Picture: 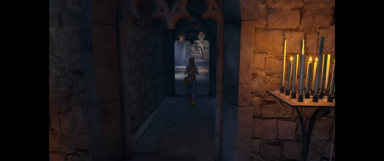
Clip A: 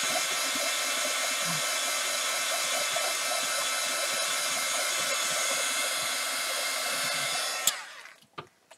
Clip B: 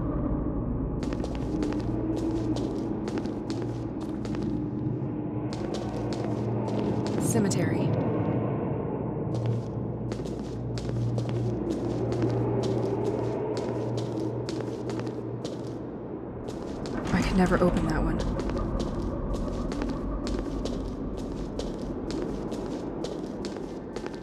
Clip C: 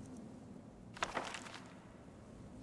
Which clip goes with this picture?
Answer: B